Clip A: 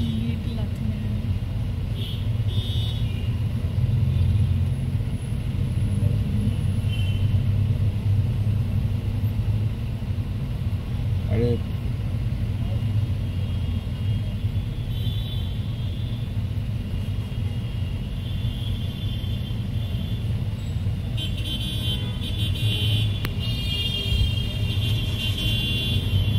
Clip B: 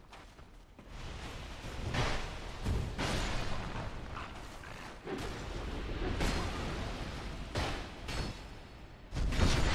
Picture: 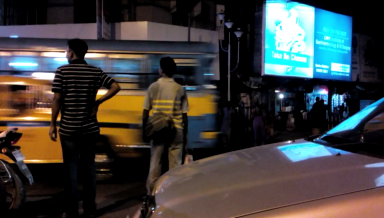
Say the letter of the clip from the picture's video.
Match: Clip A